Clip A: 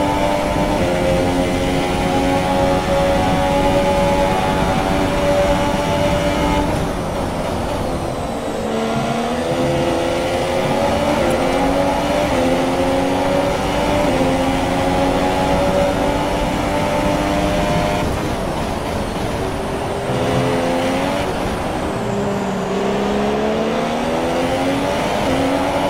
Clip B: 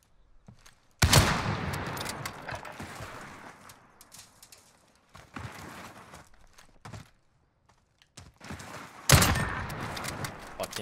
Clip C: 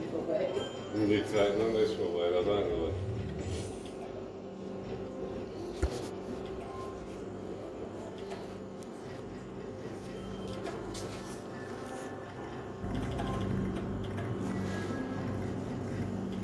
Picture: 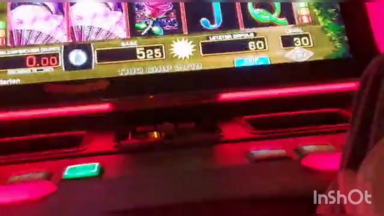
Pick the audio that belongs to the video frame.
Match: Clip C